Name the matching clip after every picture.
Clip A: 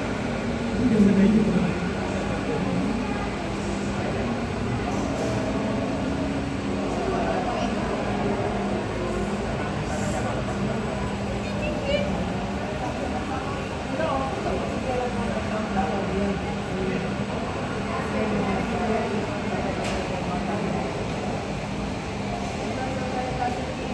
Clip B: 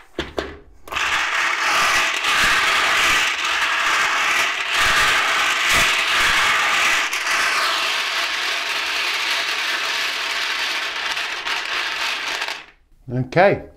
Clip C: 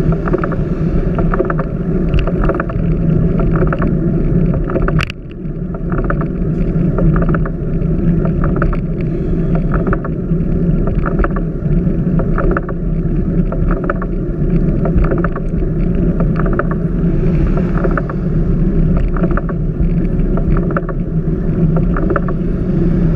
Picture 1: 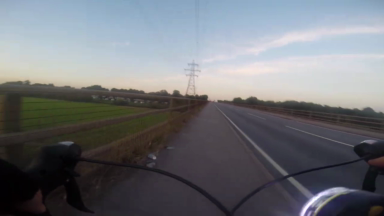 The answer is C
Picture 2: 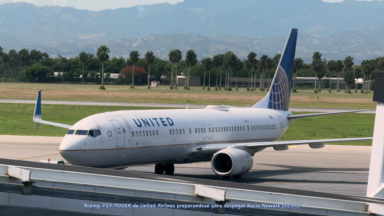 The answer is A